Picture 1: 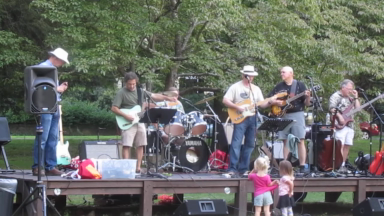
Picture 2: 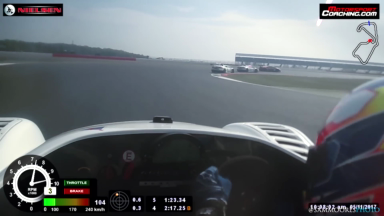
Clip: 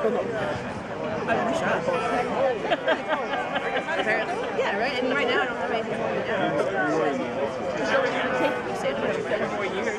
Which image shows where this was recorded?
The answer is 1